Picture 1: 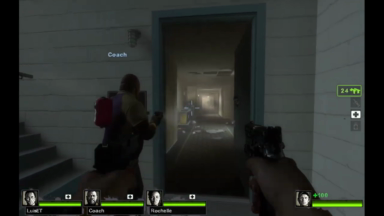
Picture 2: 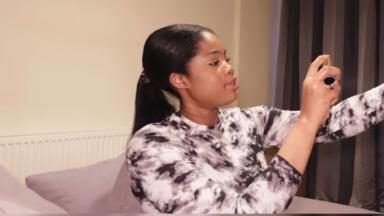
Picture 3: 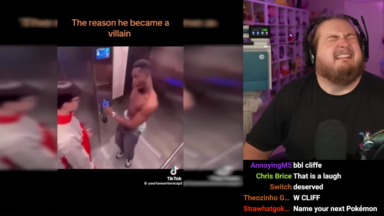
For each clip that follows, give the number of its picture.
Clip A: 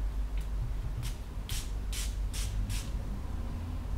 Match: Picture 2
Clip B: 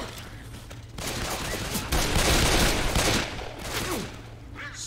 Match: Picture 1